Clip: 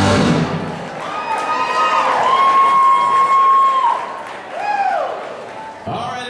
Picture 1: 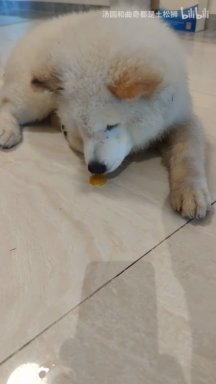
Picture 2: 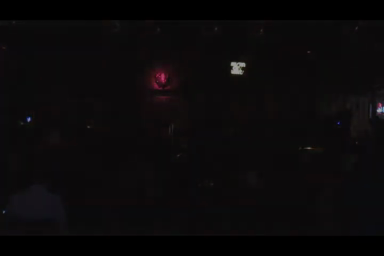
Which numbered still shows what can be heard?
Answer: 2